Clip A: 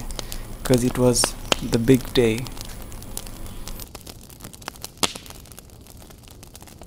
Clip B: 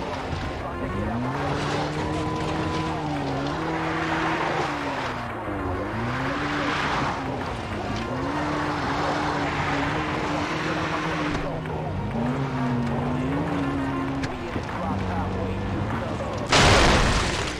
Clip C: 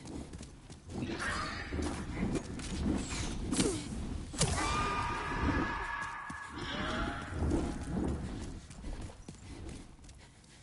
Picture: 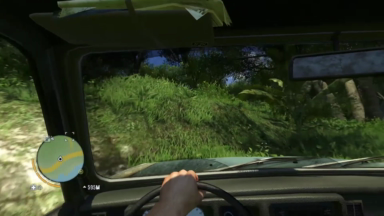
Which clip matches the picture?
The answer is B